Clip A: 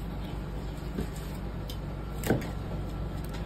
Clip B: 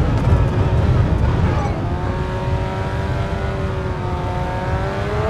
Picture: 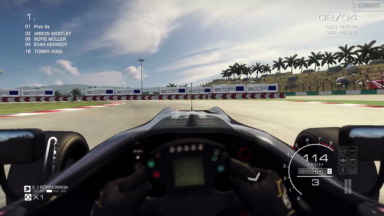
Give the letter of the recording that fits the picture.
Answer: B